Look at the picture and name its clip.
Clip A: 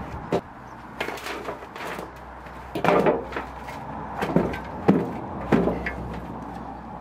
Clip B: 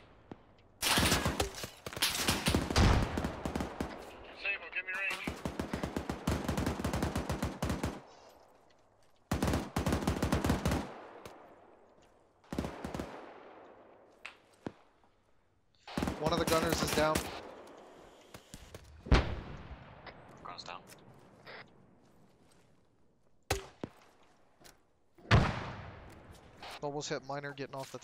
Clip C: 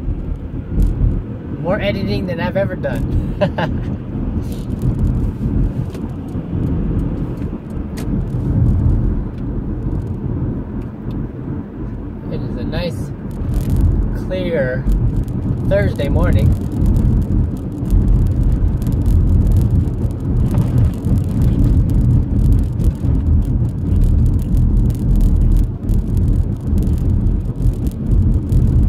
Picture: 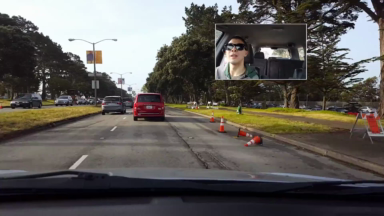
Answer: C